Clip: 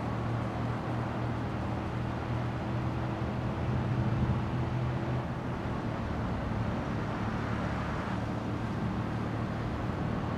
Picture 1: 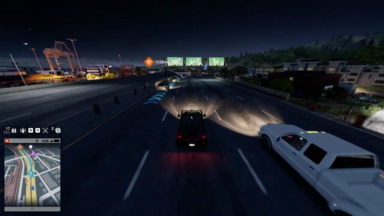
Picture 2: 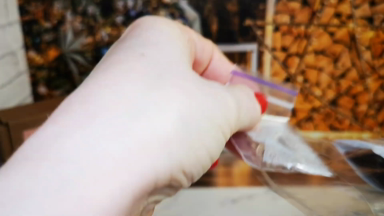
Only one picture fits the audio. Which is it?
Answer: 1